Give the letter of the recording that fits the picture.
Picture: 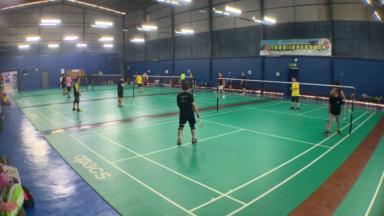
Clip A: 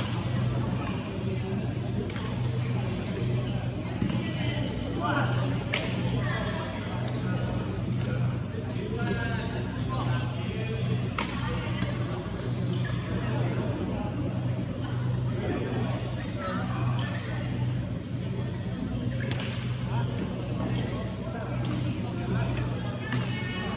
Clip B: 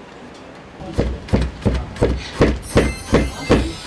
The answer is A